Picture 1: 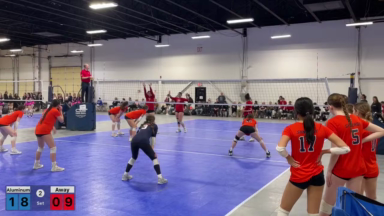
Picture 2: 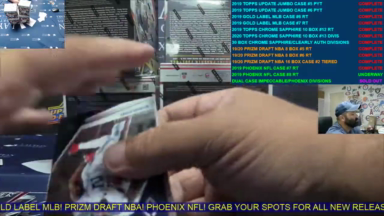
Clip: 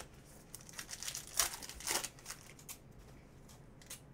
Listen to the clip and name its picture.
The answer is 2